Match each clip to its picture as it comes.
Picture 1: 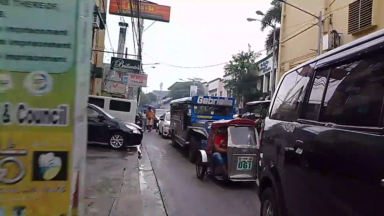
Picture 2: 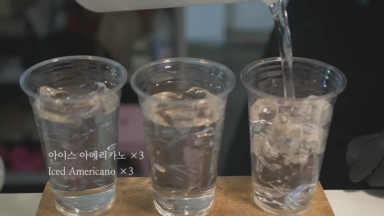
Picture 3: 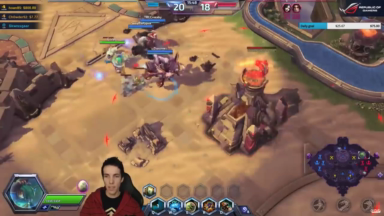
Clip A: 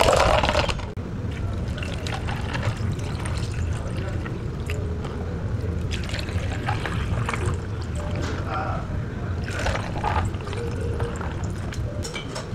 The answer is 2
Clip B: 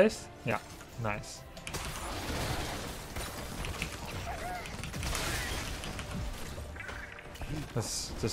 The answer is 3